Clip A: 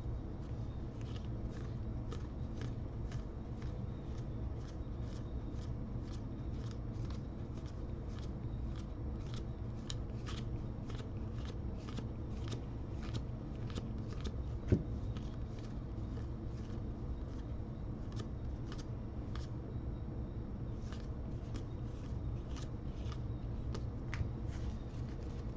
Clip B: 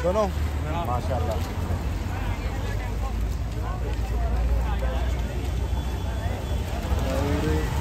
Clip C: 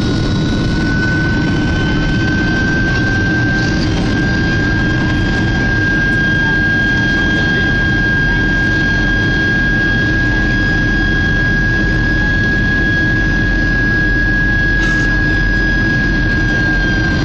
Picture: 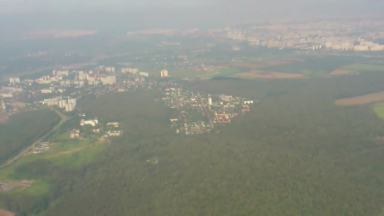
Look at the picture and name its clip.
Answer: C